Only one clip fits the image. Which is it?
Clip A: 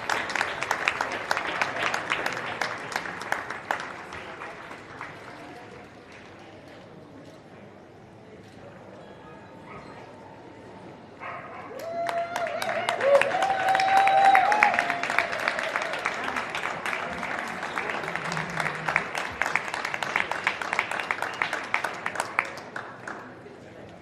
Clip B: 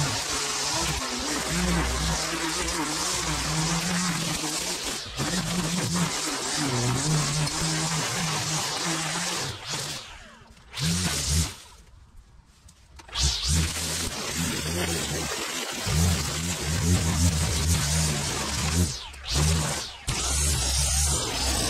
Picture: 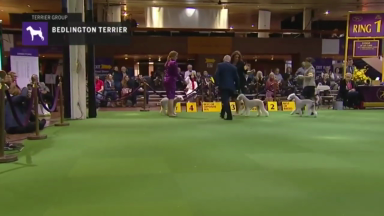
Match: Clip A